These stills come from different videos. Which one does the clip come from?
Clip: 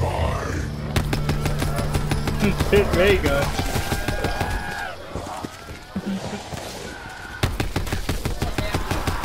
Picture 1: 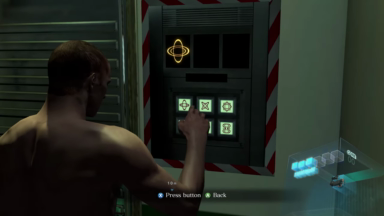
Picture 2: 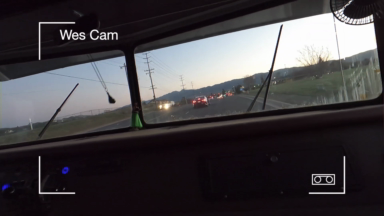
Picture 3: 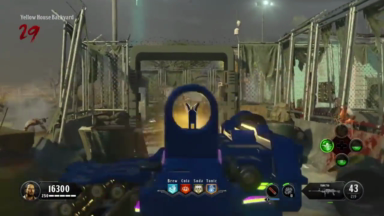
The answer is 3